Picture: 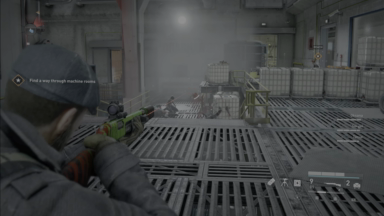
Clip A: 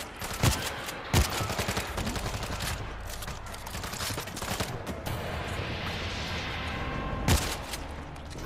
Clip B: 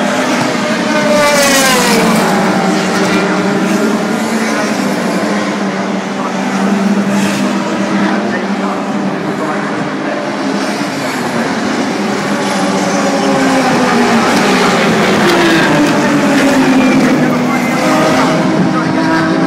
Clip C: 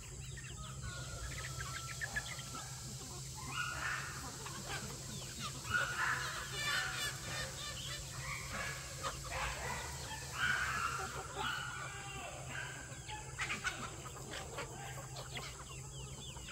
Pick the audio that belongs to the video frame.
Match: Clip A